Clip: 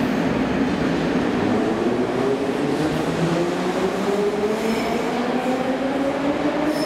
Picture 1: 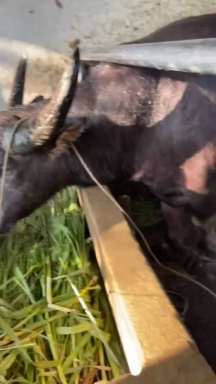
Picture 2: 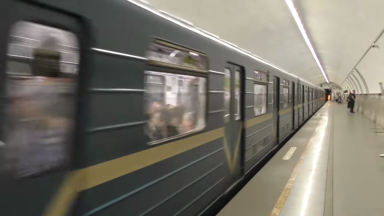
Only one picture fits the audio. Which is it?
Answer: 2